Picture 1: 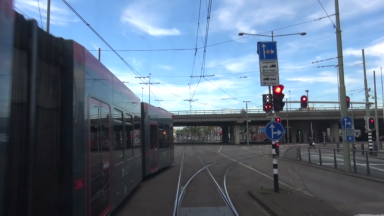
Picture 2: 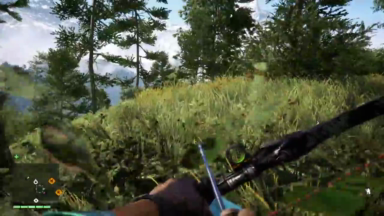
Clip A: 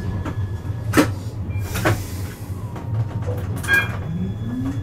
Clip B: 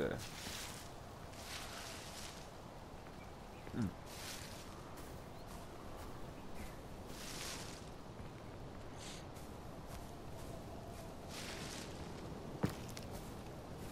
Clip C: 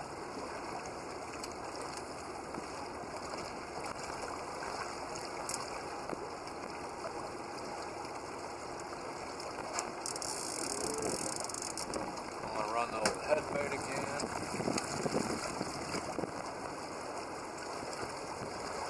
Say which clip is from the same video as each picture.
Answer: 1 A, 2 B